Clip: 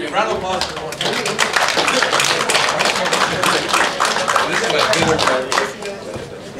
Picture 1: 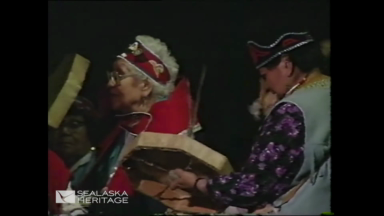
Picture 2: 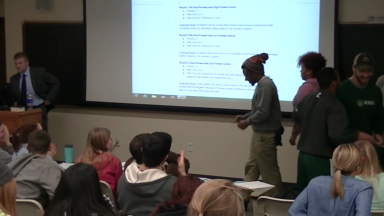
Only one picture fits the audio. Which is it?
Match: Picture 2